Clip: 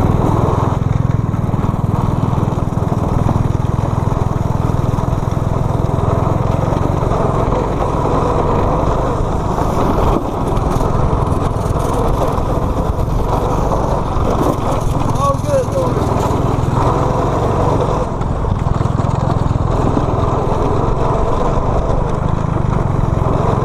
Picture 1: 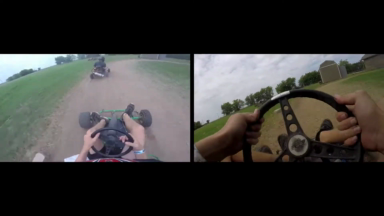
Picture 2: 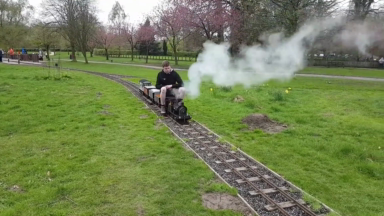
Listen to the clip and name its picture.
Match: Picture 1